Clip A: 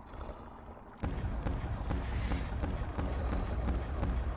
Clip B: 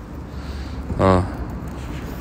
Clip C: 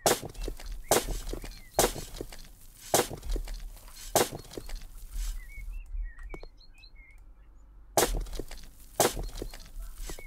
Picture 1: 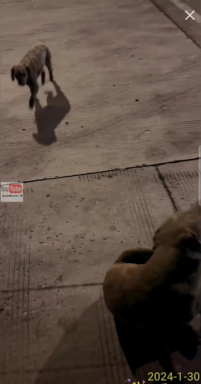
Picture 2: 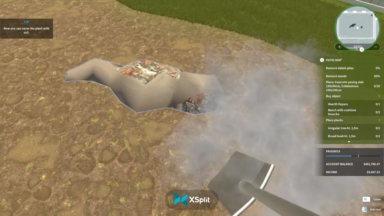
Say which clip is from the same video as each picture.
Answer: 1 B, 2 C